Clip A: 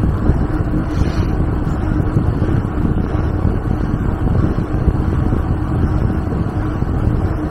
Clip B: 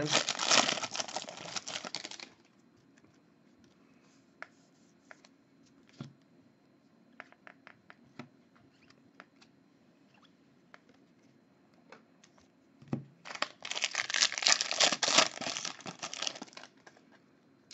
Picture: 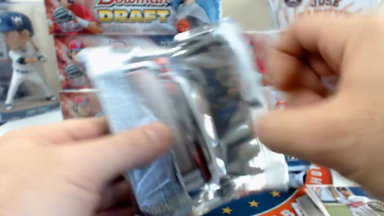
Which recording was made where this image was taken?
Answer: B